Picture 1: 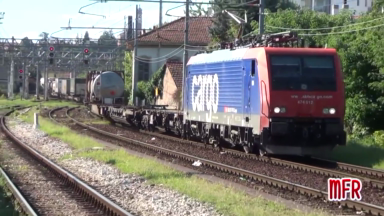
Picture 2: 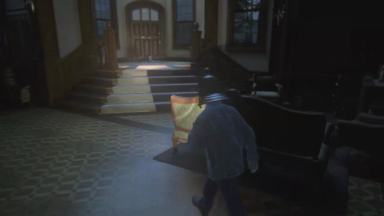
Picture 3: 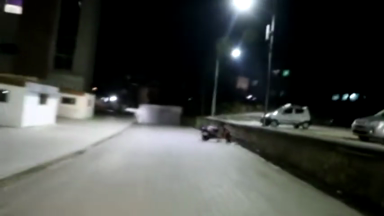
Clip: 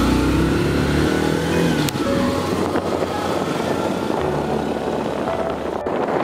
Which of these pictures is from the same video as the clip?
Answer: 3